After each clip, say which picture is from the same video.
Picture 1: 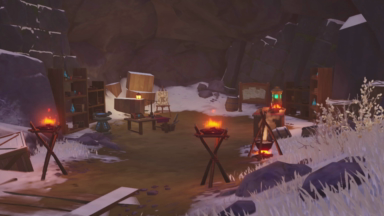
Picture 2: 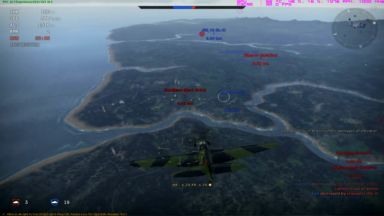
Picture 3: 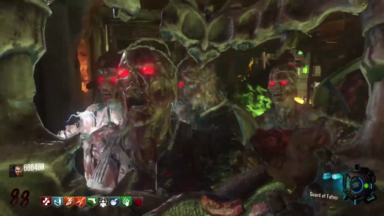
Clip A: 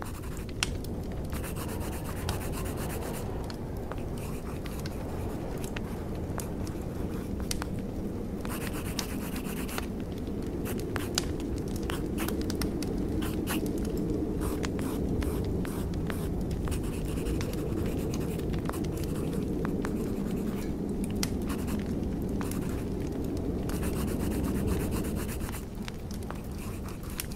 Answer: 1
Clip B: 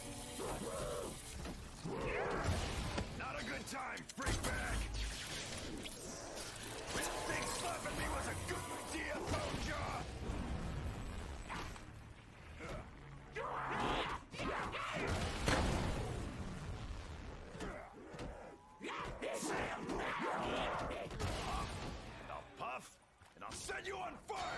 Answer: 3